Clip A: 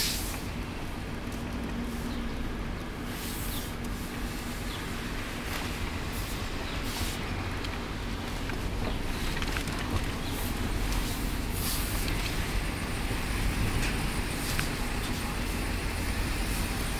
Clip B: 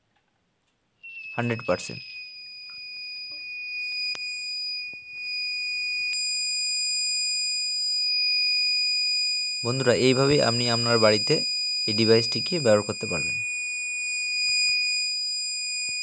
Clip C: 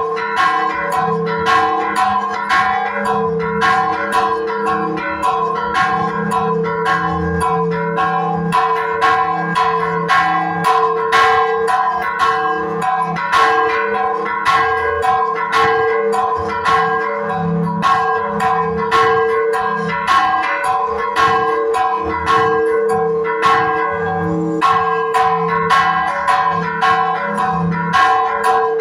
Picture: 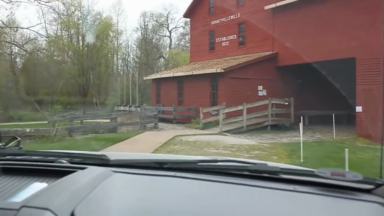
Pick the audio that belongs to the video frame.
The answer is A